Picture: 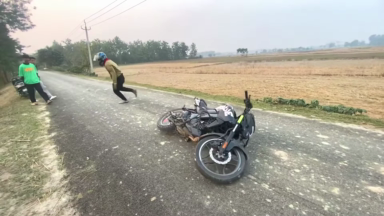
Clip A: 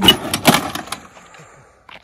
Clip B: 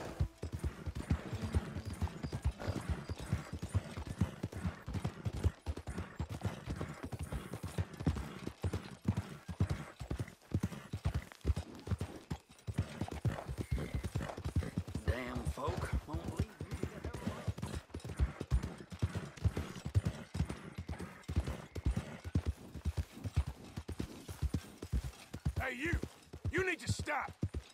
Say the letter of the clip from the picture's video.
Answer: A